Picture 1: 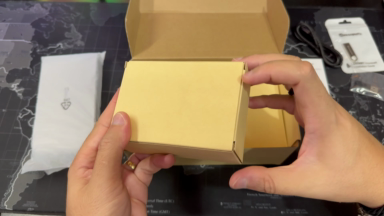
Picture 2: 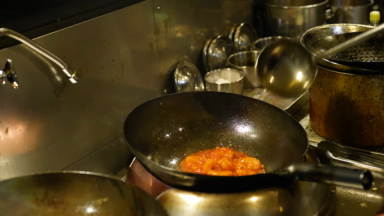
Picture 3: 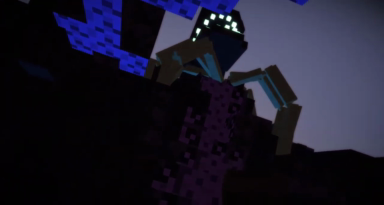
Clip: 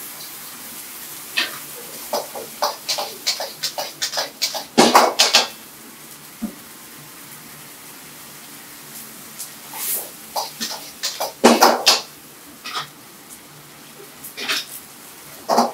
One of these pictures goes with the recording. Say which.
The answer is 2